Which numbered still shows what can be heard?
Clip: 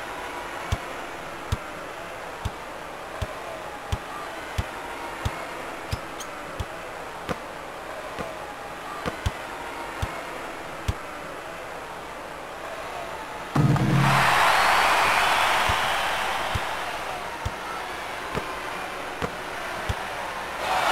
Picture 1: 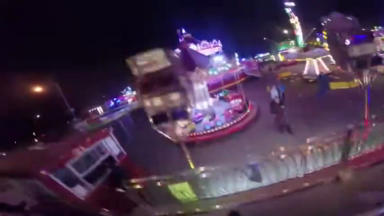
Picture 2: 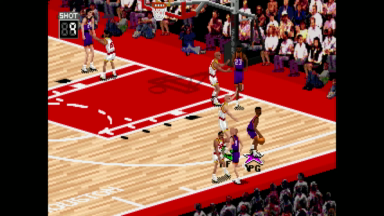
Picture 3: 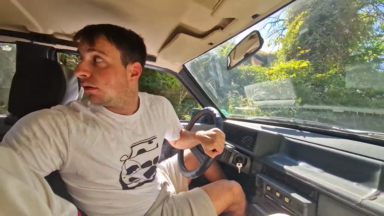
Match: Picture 2